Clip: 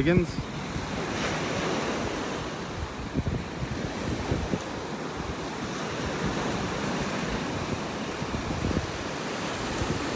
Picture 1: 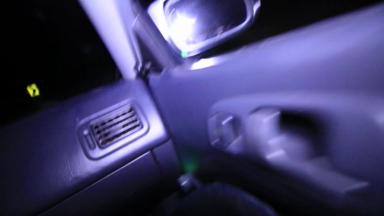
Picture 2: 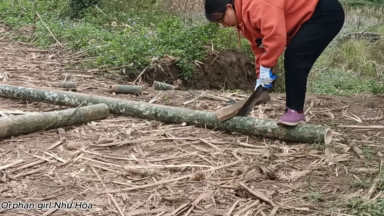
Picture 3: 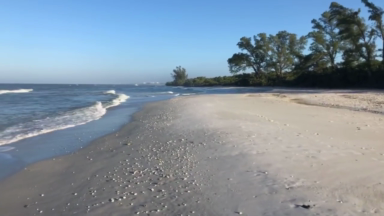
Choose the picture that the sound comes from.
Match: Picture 3